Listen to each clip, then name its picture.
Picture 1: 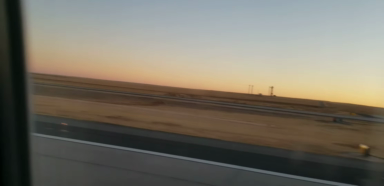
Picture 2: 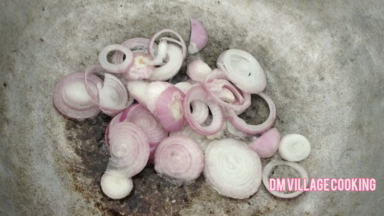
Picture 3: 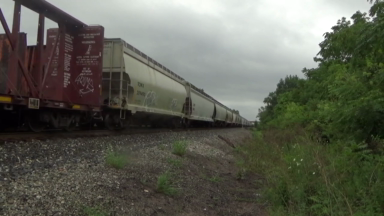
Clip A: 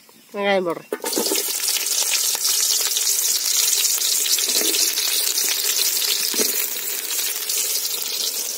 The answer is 2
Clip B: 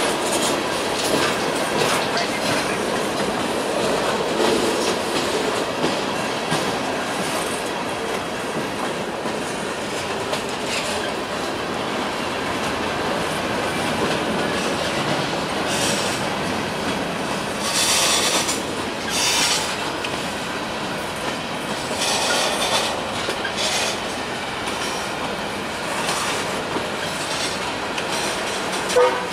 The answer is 3